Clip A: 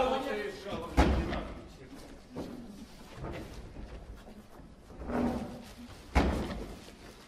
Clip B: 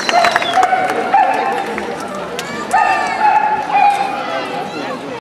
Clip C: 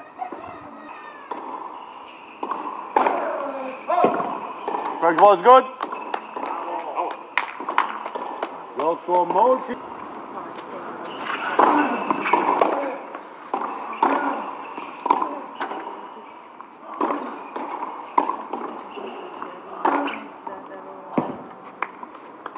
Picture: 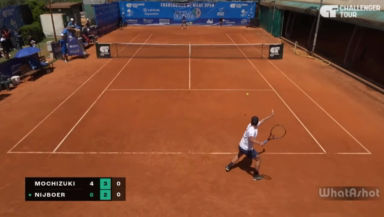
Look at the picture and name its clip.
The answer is C